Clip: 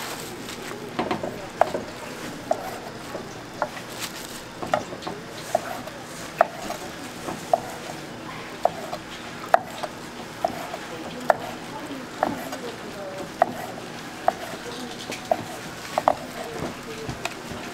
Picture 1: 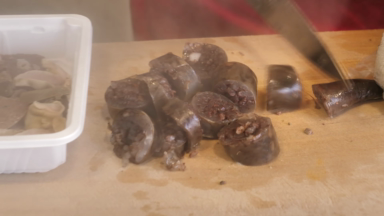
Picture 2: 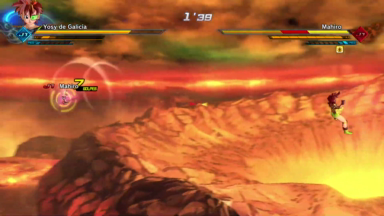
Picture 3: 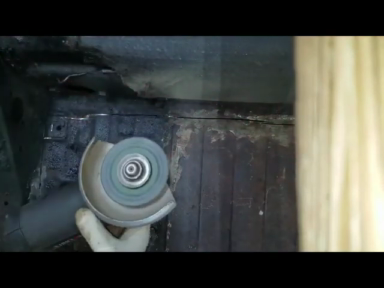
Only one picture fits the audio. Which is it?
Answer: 1